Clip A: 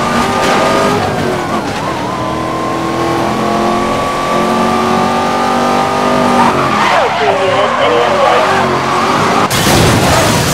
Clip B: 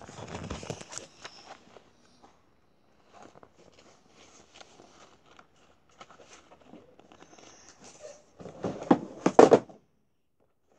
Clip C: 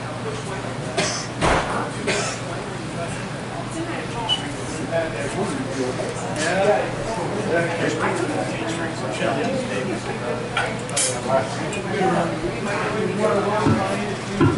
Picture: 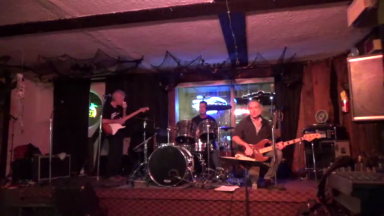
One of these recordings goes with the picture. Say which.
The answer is C